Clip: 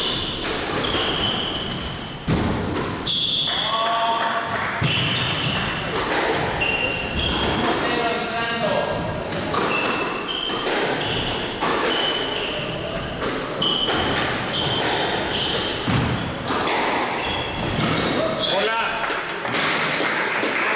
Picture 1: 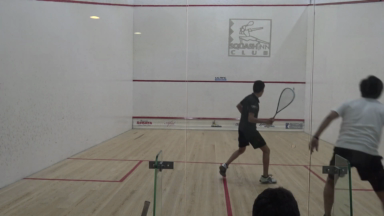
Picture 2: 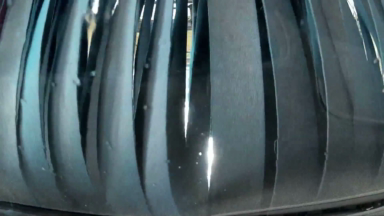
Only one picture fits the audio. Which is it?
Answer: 1